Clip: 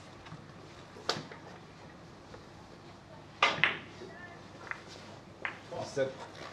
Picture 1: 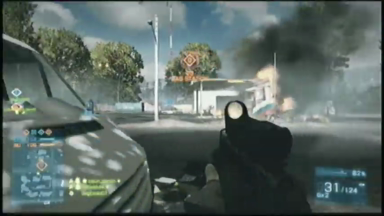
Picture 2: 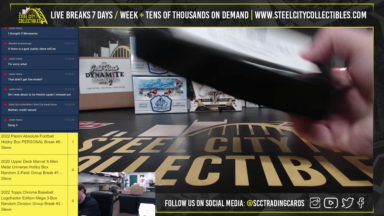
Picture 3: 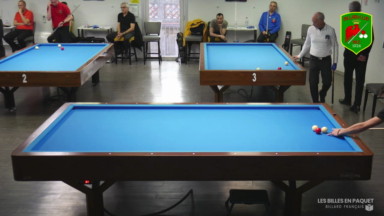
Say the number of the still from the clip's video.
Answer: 3